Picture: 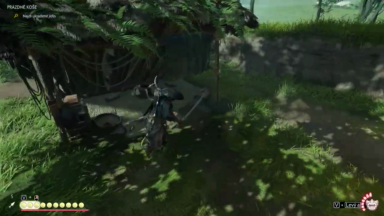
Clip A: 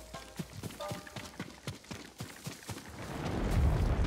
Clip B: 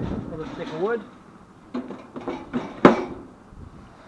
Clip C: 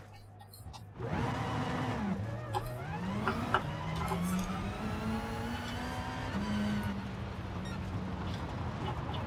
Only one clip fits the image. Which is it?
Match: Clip A